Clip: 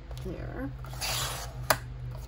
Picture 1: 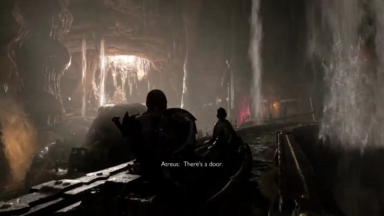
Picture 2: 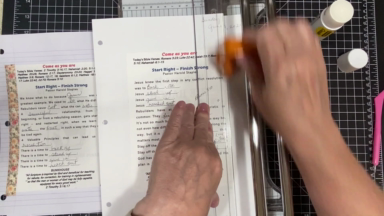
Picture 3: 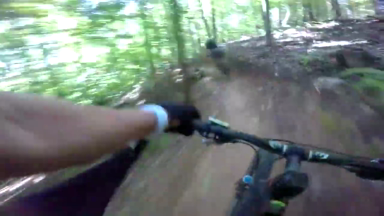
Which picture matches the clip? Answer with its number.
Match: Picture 2